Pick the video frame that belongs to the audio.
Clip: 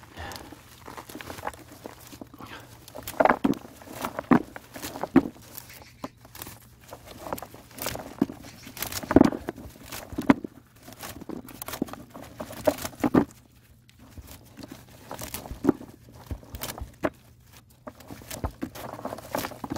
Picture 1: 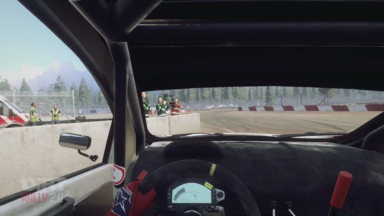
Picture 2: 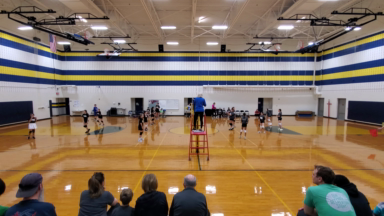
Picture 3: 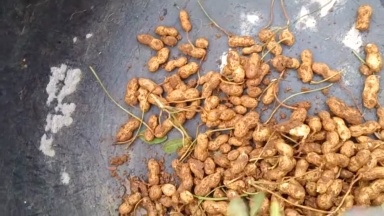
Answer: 3